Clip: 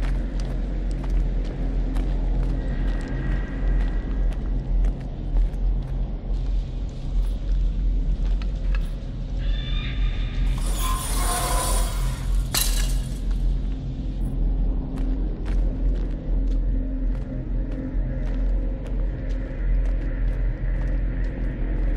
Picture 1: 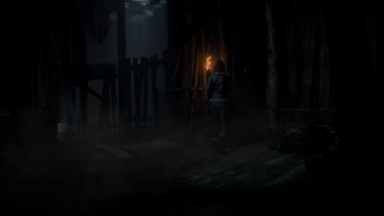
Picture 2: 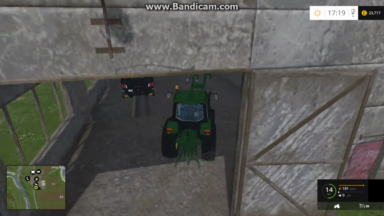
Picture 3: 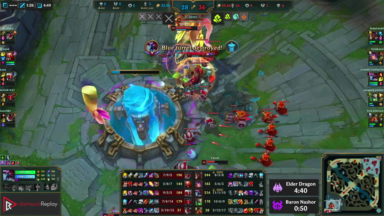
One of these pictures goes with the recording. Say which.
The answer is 1